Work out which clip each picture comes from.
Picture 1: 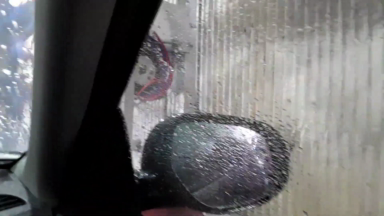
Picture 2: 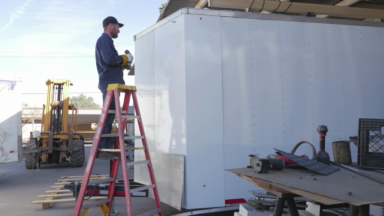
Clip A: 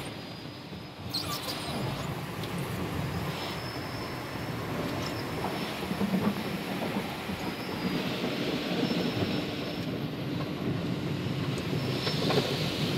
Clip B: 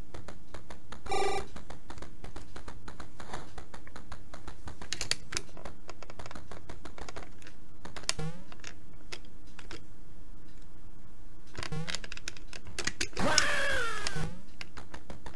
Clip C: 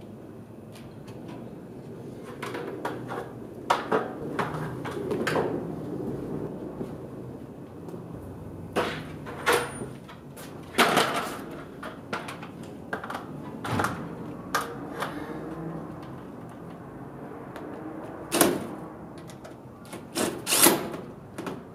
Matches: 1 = A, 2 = C